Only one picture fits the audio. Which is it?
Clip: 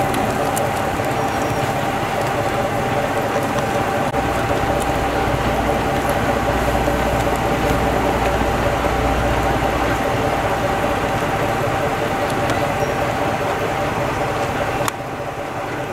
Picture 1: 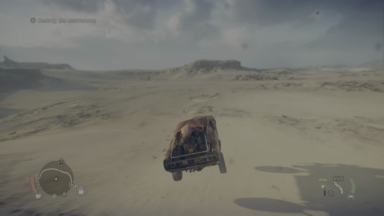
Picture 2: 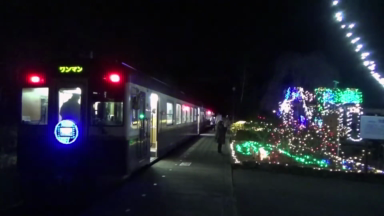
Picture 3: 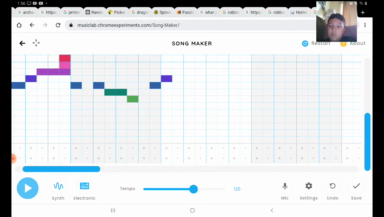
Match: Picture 2